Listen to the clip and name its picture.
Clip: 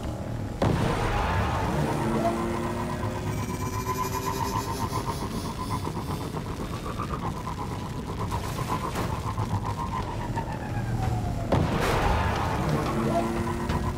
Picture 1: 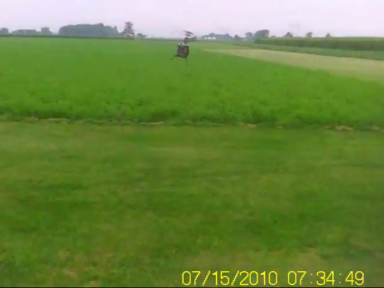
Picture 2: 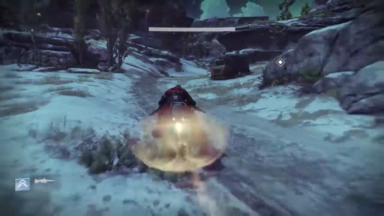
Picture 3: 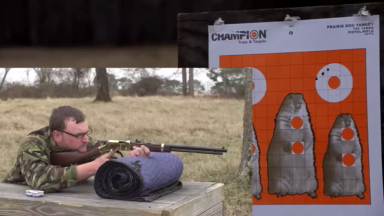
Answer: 2